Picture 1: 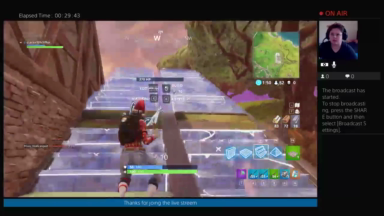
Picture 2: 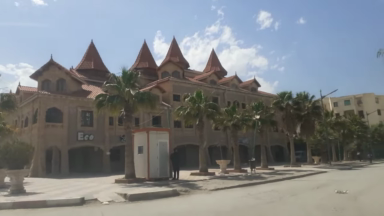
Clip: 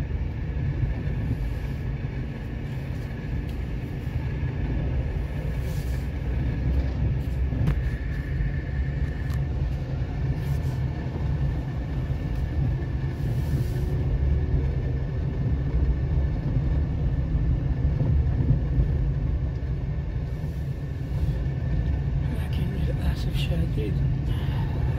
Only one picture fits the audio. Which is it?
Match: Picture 2